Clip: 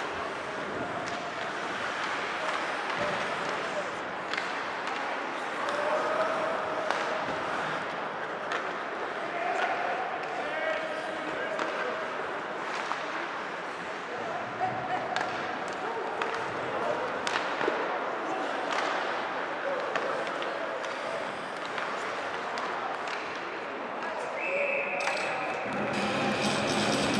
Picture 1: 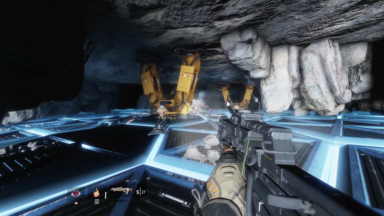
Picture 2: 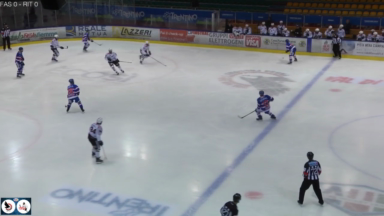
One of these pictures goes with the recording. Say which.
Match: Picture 2